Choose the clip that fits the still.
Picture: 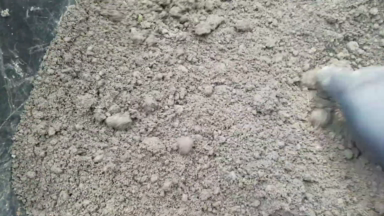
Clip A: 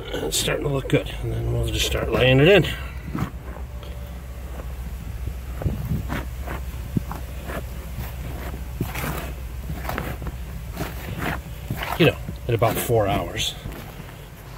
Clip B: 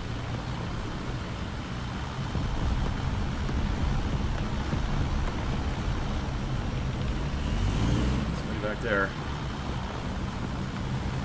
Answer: A